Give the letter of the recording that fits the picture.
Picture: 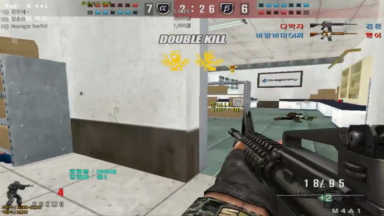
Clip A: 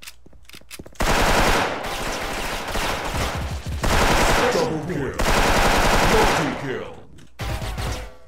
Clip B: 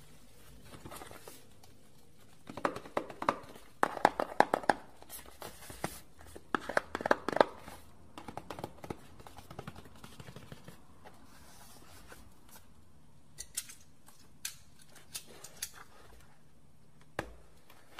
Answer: A